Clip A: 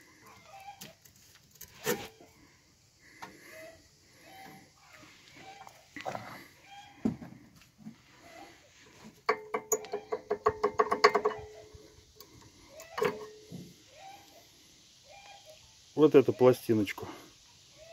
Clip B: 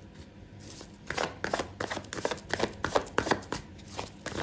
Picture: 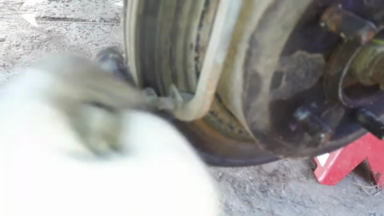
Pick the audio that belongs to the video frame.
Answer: A